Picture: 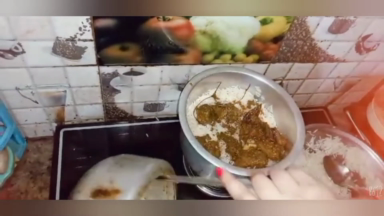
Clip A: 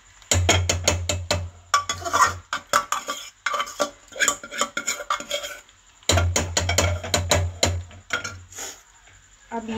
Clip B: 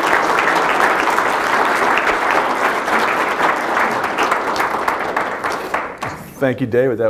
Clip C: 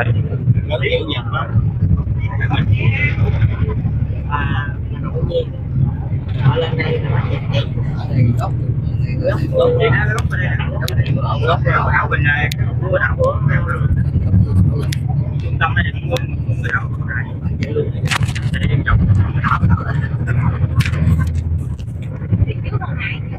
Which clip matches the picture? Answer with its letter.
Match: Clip A